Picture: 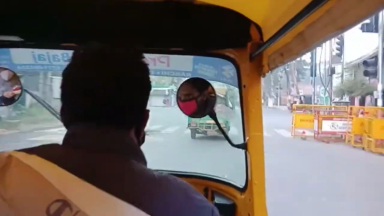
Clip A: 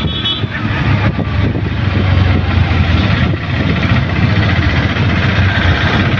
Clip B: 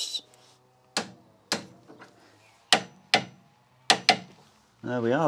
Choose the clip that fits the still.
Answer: A